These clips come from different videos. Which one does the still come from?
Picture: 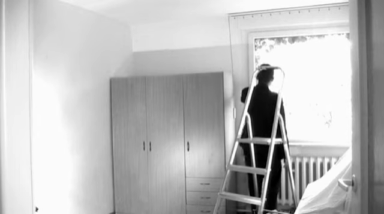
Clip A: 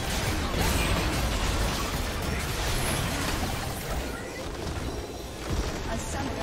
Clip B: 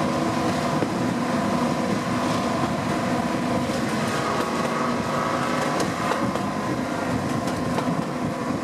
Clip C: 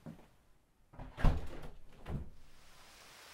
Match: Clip C